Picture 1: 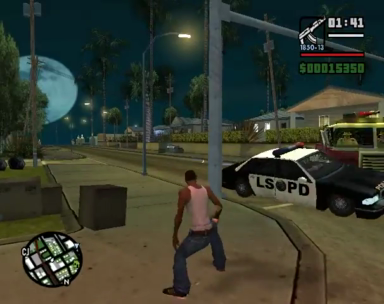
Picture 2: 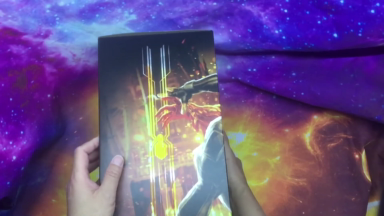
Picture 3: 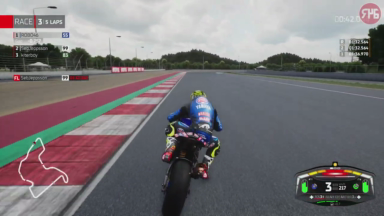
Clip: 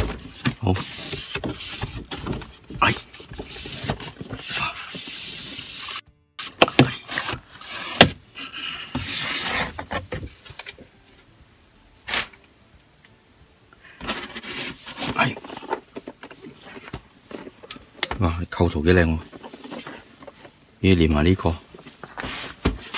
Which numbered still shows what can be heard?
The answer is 2